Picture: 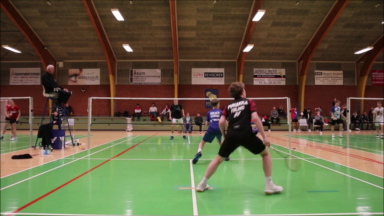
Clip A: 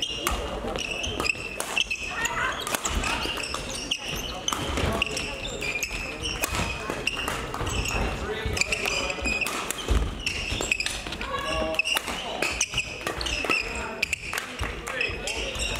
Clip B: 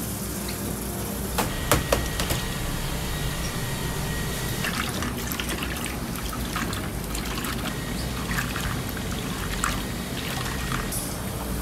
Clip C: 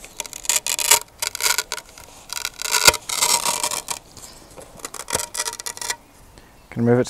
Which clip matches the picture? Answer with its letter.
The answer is A